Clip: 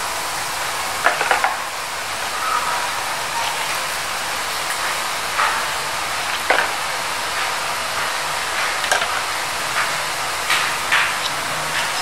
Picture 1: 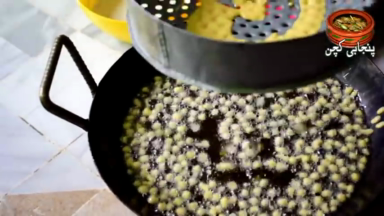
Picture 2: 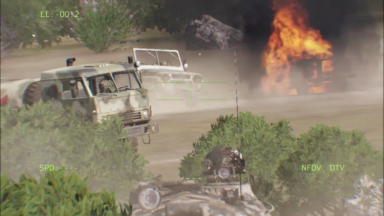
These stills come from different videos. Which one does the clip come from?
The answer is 1